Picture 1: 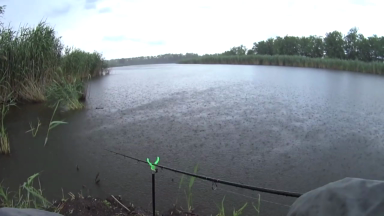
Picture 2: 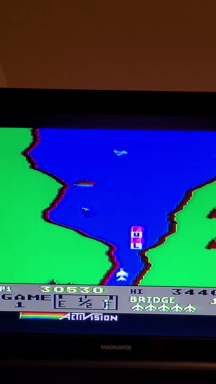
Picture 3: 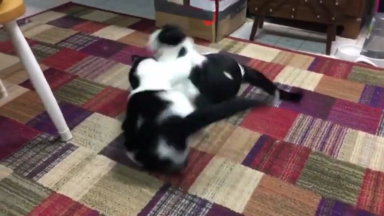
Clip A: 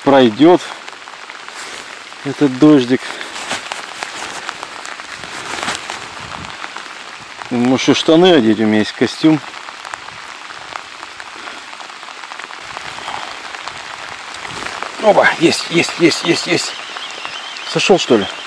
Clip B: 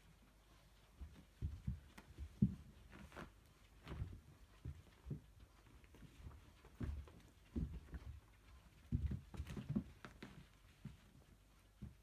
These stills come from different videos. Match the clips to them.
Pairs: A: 1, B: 3